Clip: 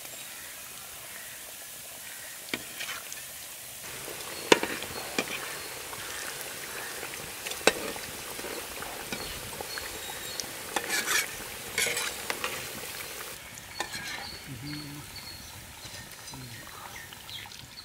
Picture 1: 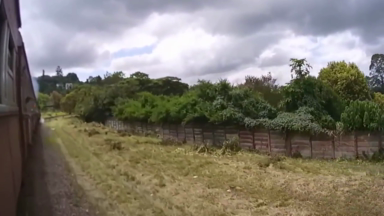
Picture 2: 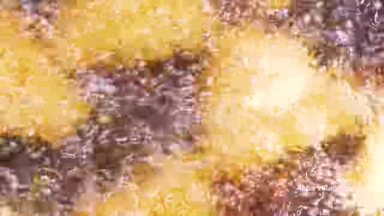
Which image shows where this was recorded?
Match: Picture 2